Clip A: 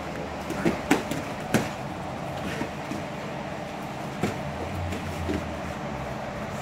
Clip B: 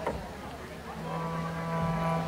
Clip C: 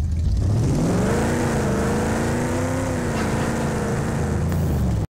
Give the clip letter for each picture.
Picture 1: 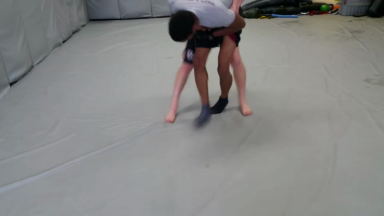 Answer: A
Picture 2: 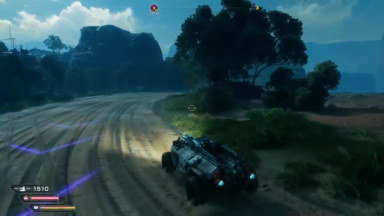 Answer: C